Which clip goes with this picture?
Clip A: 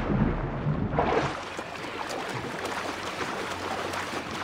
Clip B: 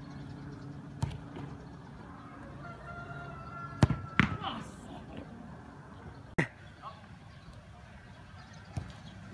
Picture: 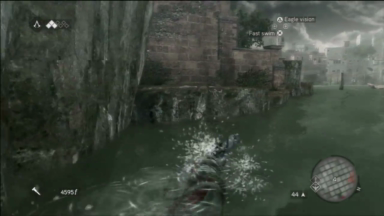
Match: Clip A